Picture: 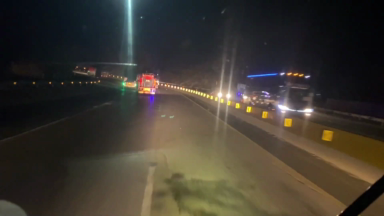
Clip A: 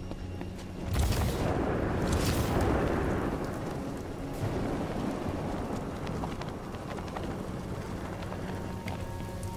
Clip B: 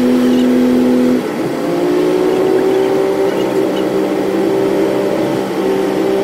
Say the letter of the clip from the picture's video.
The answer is B